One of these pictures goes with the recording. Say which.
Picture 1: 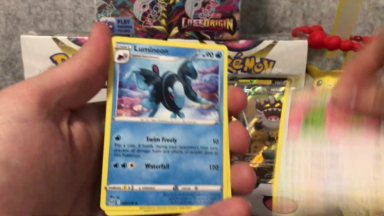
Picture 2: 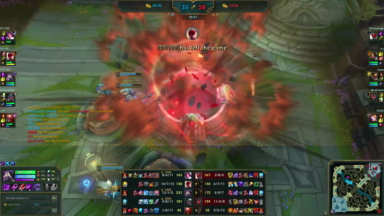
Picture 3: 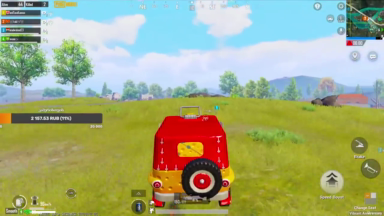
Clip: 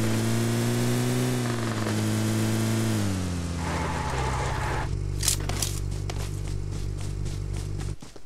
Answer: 3